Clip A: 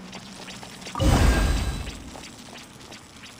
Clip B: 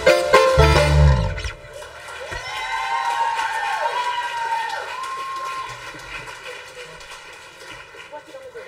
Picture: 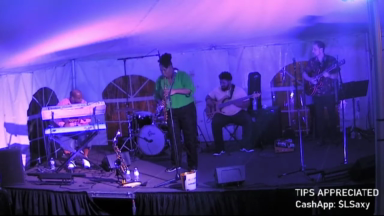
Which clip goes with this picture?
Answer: B